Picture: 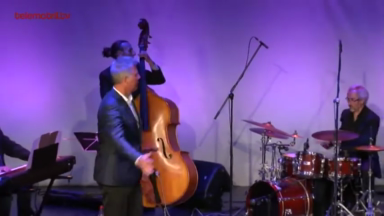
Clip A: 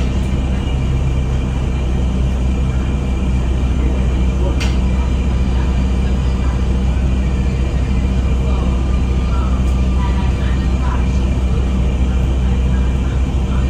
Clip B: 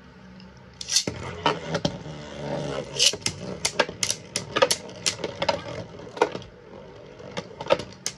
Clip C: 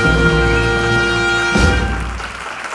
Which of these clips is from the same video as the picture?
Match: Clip C